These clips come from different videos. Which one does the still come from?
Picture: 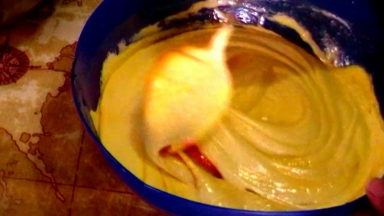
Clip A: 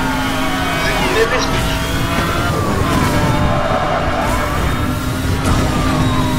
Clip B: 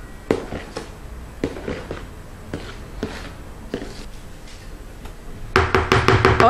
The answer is B